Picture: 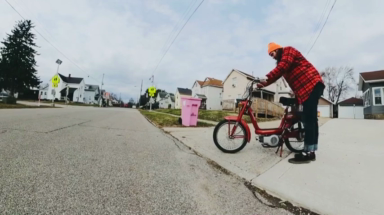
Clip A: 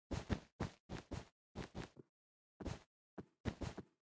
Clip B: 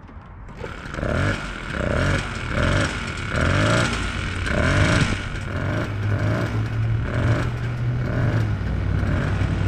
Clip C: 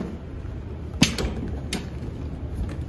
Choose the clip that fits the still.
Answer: B